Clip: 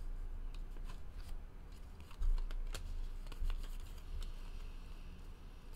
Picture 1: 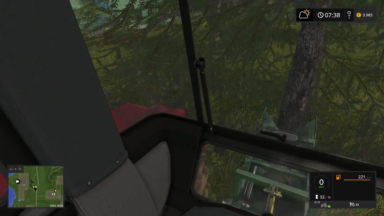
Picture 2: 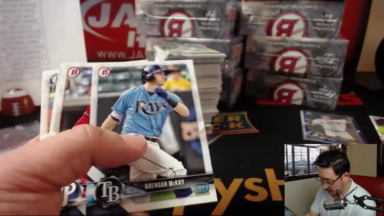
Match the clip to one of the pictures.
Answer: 2